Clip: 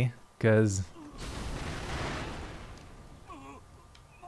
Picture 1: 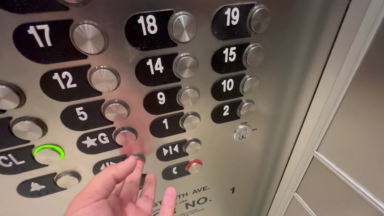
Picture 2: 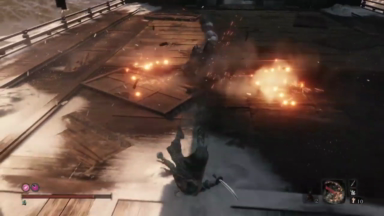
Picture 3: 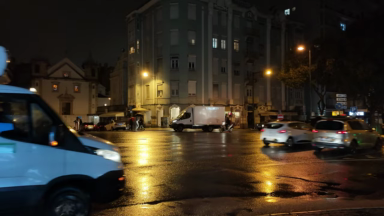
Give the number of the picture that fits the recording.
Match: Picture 2